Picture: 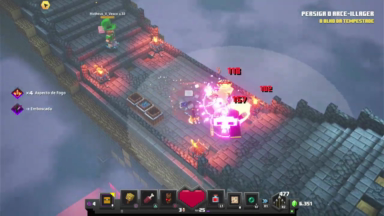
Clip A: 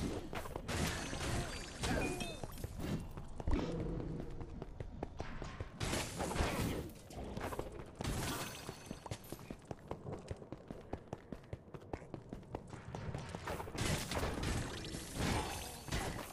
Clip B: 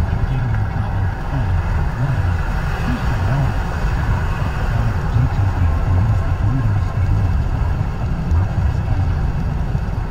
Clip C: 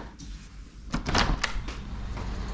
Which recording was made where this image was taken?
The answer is A